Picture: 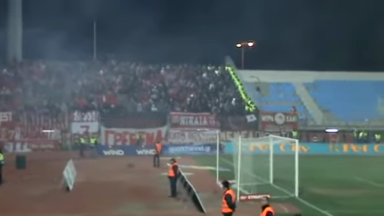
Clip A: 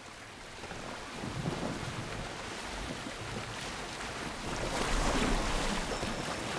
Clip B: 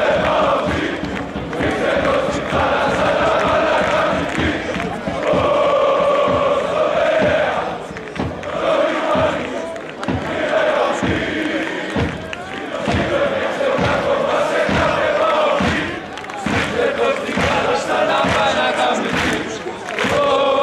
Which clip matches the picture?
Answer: B